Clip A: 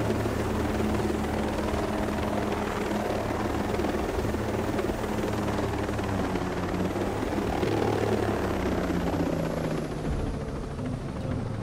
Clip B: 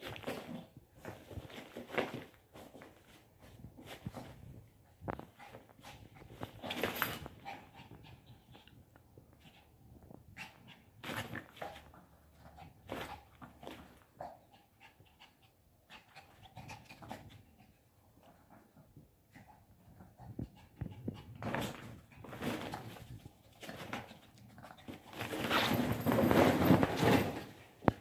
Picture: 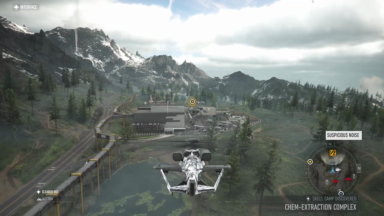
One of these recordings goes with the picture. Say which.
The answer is A